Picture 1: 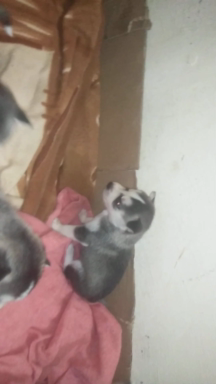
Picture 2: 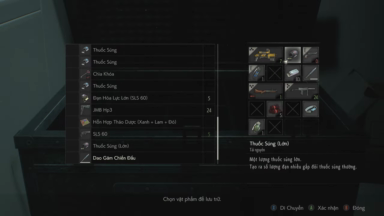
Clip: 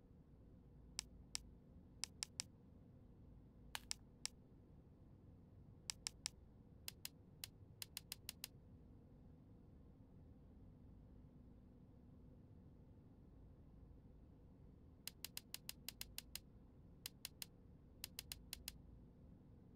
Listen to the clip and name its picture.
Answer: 2